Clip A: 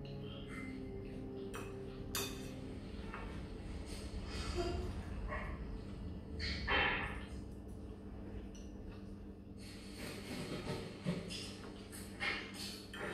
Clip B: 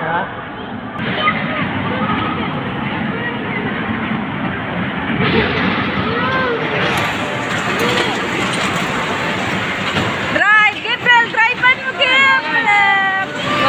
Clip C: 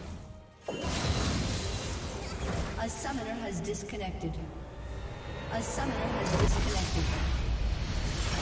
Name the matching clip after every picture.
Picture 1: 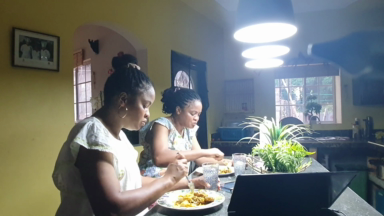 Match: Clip A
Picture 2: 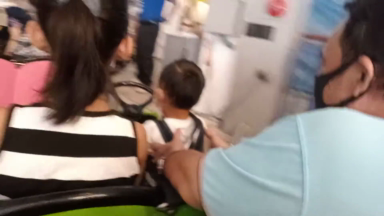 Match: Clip B